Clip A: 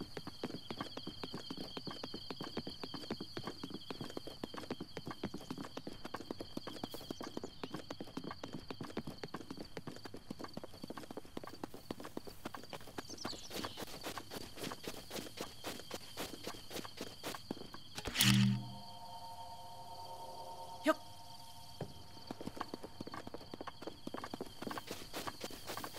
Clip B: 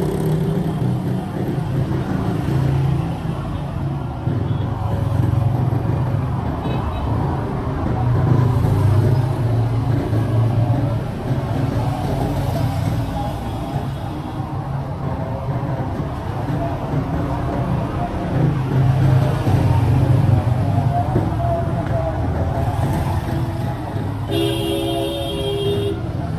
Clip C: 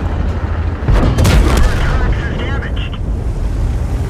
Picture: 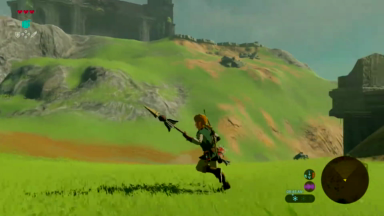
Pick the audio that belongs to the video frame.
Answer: A